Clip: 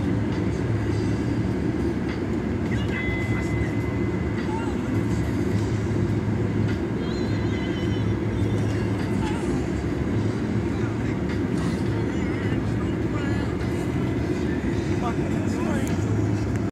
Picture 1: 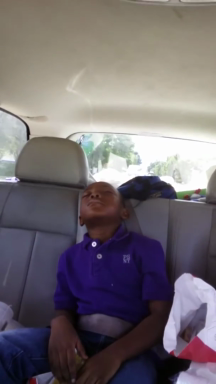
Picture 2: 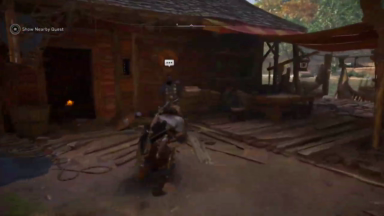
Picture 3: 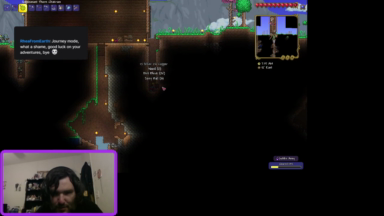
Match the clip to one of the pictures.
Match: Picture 1